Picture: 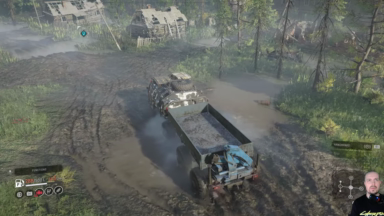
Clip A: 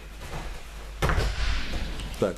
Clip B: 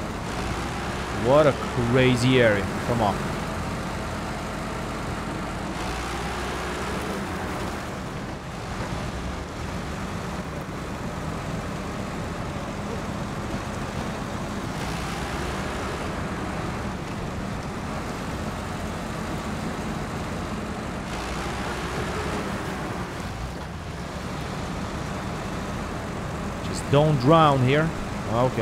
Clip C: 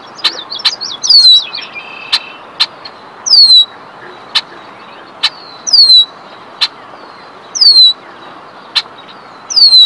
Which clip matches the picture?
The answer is B